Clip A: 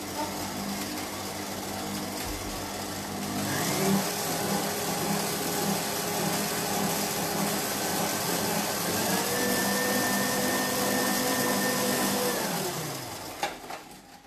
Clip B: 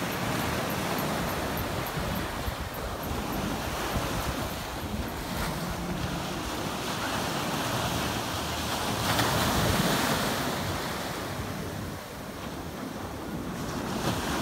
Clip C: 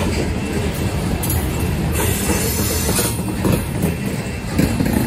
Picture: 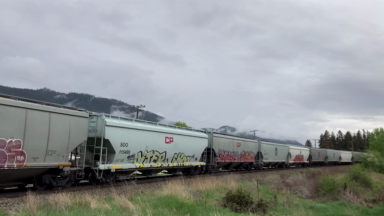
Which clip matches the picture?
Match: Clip C